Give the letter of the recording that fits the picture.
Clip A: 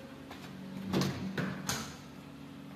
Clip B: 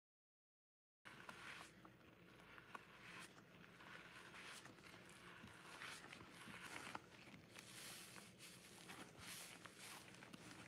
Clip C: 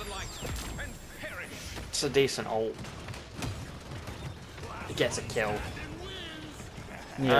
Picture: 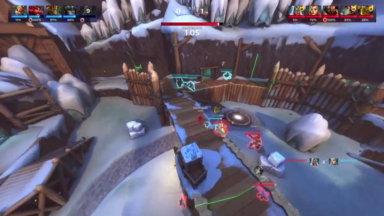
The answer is C